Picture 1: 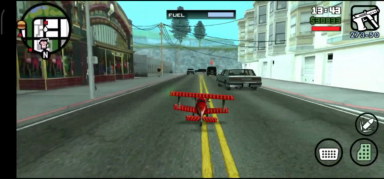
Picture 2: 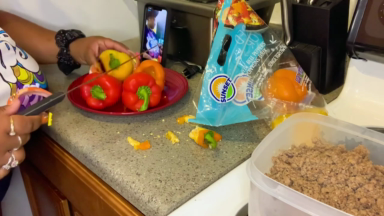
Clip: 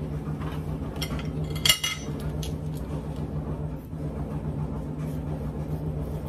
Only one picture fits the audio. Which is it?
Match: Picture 2